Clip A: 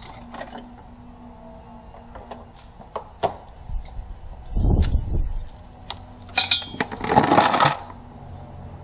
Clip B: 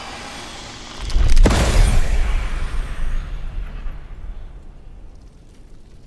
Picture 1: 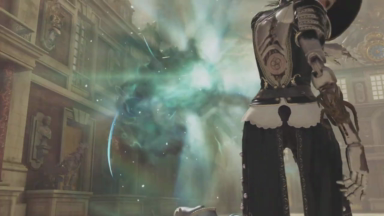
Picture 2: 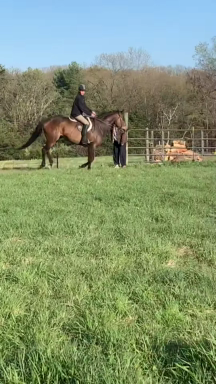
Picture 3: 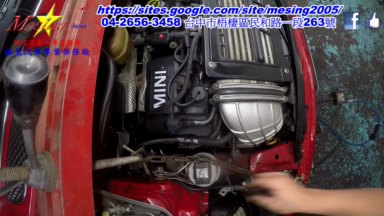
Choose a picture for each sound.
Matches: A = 3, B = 1